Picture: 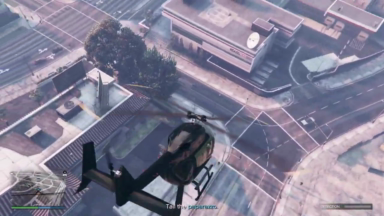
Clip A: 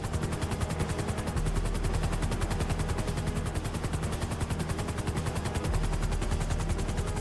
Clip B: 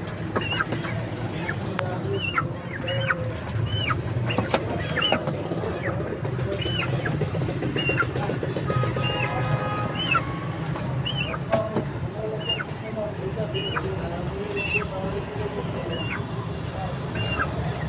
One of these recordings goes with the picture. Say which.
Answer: A